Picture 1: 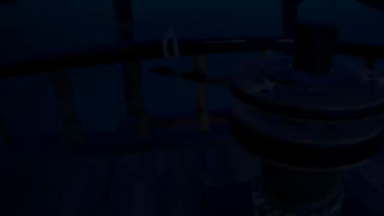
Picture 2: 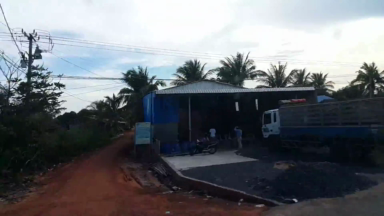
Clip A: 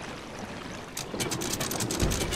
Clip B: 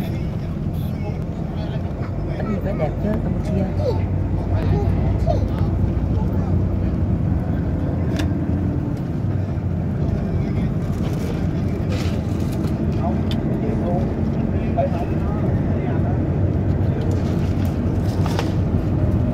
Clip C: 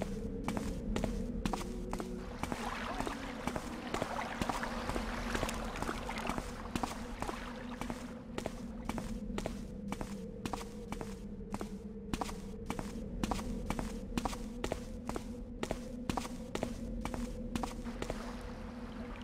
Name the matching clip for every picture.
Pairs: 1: A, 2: B